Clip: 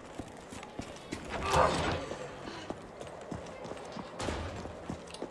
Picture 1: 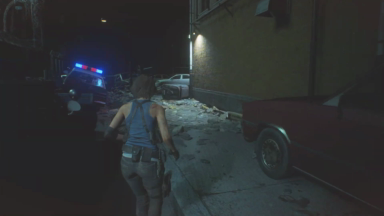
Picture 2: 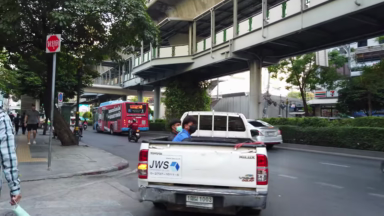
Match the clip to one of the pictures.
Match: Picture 1